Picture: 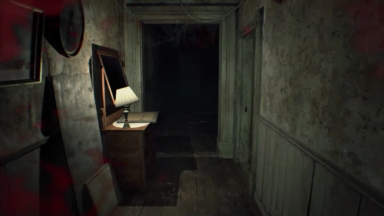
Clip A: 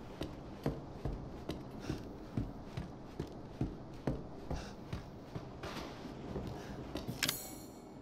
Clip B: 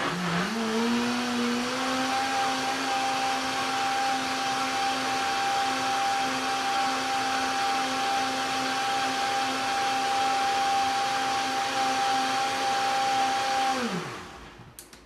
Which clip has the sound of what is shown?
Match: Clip A